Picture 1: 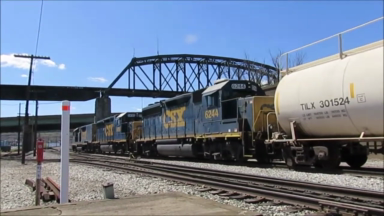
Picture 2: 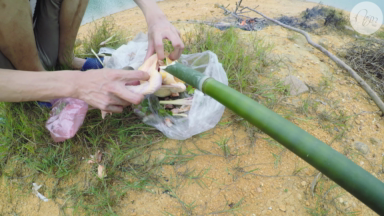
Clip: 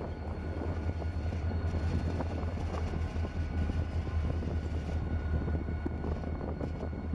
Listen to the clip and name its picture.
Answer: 1